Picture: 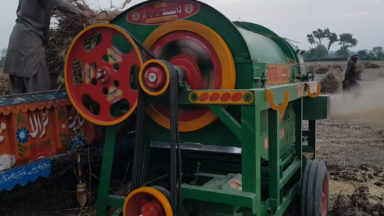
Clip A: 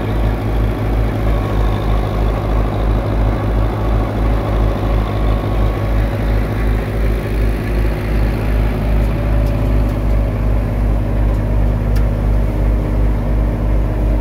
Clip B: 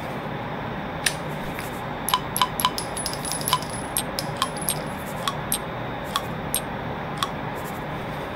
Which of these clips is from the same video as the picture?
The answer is A